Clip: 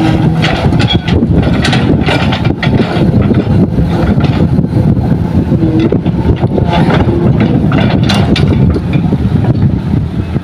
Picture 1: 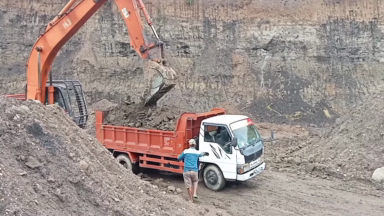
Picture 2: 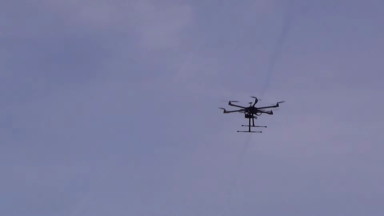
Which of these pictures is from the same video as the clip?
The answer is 1